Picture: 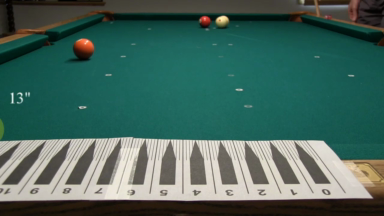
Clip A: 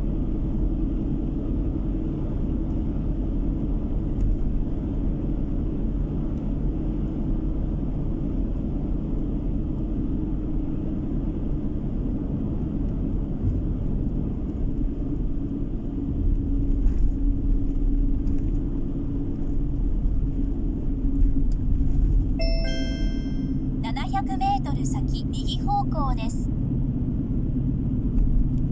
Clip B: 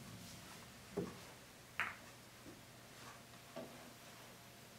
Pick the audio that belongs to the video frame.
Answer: B